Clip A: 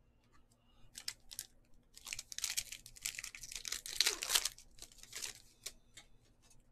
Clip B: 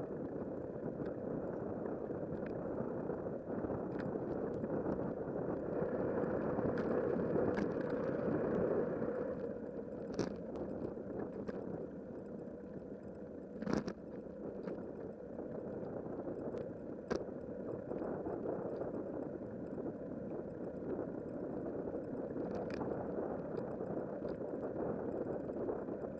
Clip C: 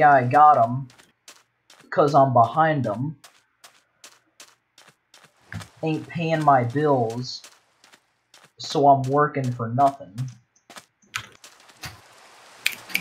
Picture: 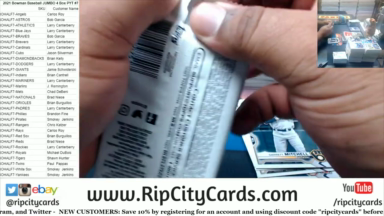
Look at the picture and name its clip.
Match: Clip A